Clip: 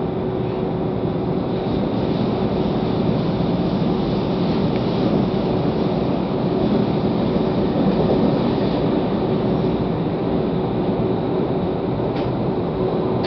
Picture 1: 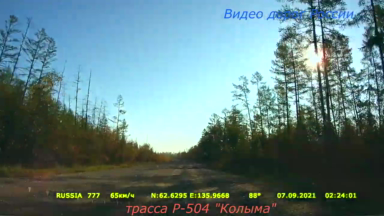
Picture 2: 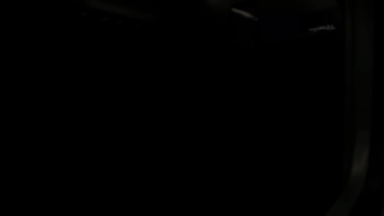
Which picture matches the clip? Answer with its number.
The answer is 2